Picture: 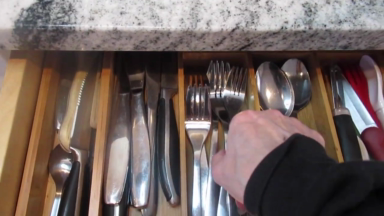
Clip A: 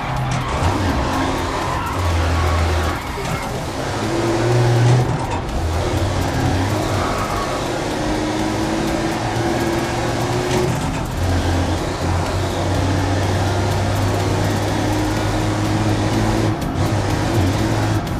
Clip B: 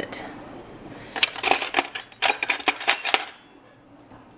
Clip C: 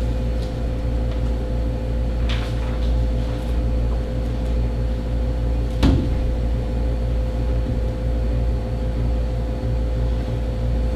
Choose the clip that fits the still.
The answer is B